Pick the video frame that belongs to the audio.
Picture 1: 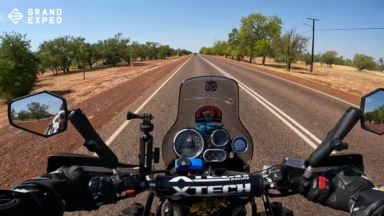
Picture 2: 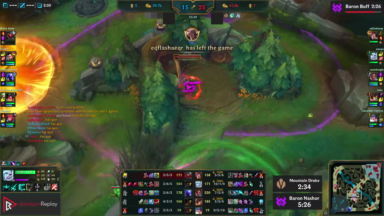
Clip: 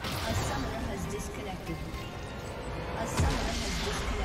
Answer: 2